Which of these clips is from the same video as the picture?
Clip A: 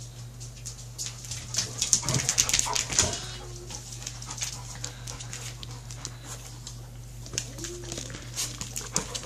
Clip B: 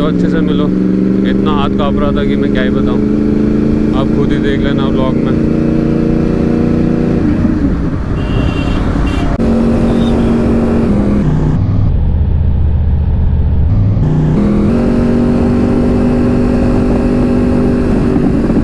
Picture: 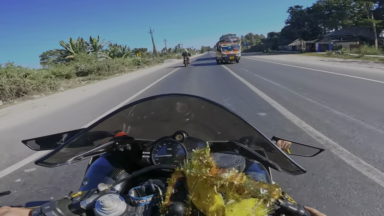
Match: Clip B